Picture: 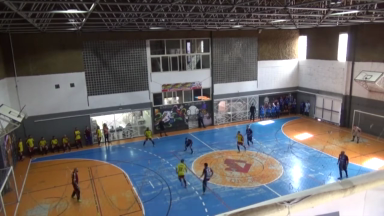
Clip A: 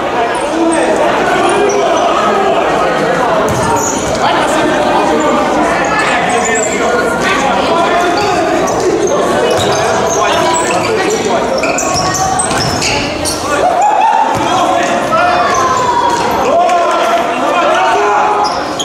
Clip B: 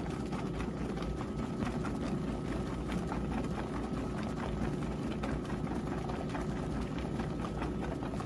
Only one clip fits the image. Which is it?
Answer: A